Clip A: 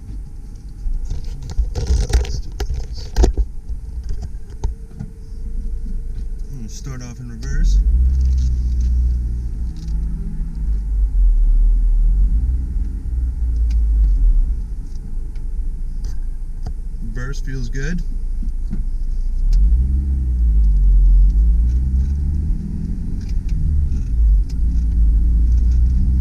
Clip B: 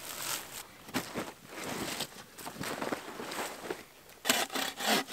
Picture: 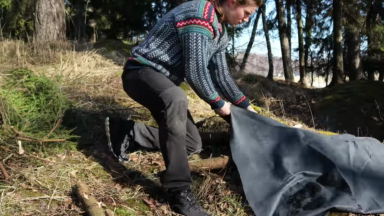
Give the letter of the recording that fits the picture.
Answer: B